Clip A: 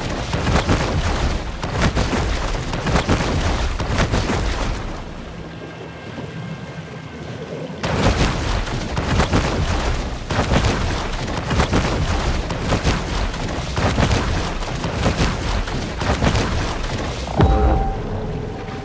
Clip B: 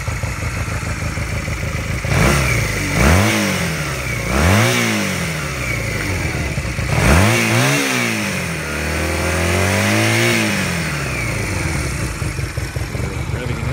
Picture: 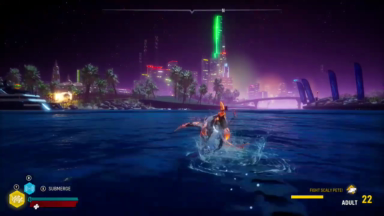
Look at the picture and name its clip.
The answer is A